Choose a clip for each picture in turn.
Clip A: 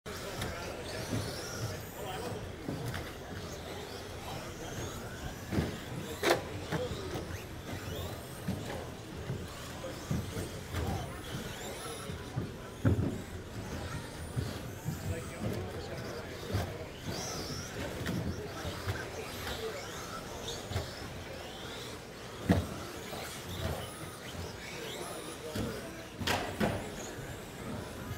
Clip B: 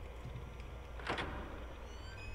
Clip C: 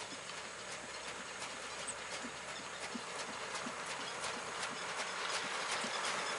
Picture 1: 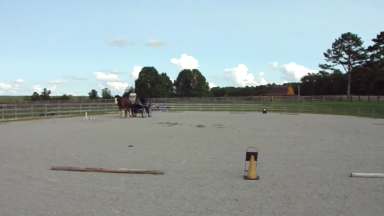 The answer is C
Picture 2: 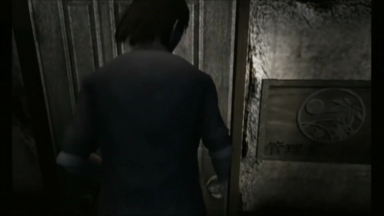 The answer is B